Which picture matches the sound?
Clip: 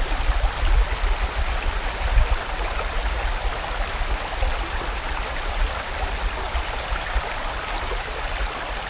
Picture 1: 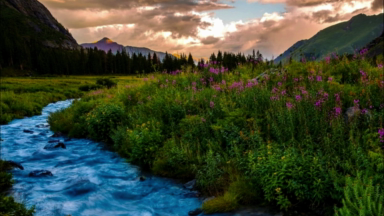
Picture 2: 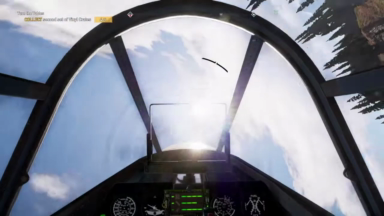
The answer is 1